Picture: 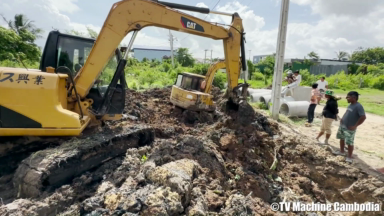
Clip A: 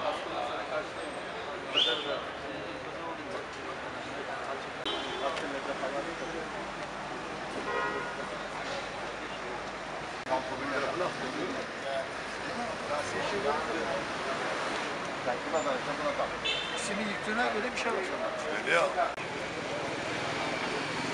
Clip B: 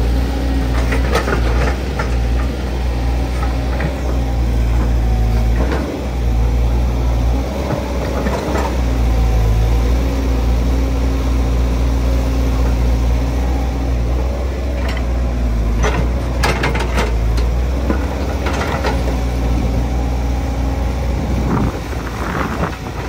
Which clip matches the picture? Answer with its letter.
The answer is B